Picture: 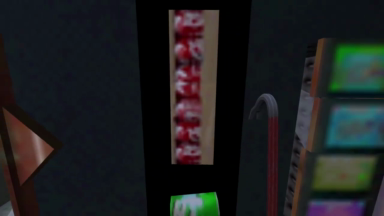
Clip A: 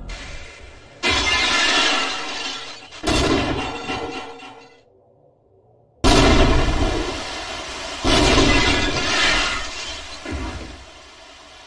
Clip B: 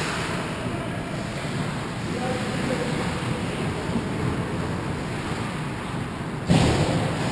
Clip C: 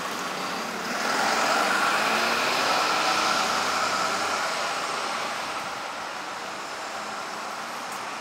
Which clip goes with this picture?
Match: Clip A